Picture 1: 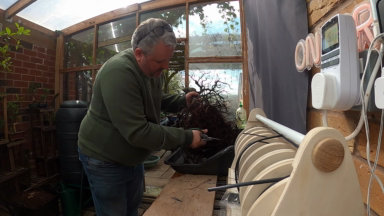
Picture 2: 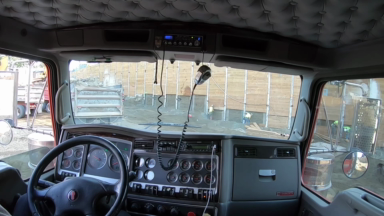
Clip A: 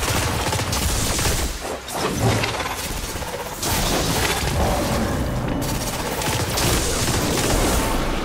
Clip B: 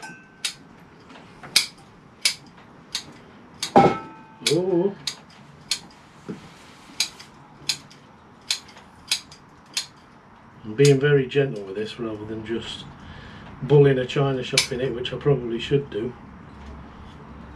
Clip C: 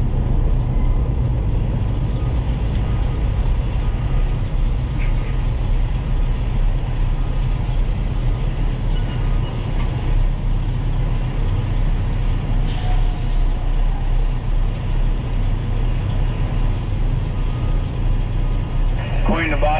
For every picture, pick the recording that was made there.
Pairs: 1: B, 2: C